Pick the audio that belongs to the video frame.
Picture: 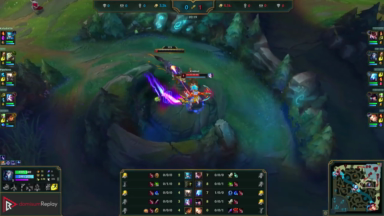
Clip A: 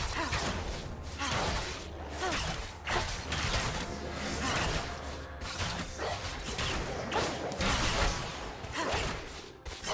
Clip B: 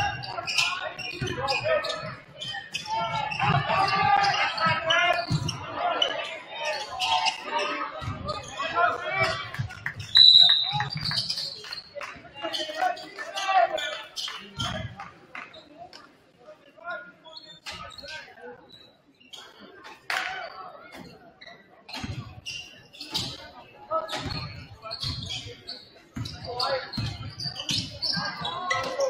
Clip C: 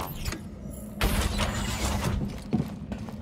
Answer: A